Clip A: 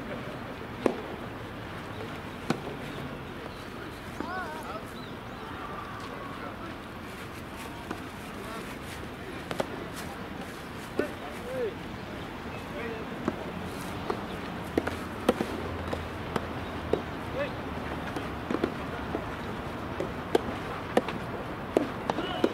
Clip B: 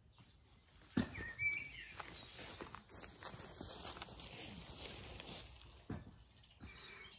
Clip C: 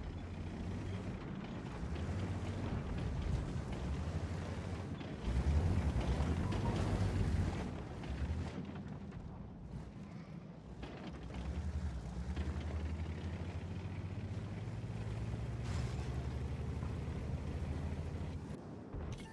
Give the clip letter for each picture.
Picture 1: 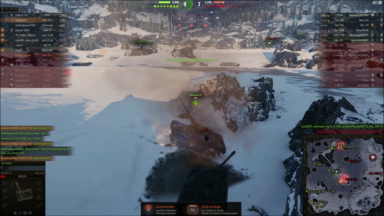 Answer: C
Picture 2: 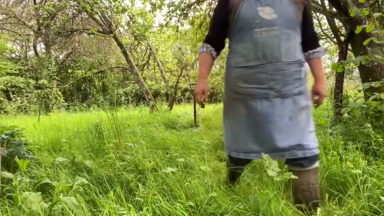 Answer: B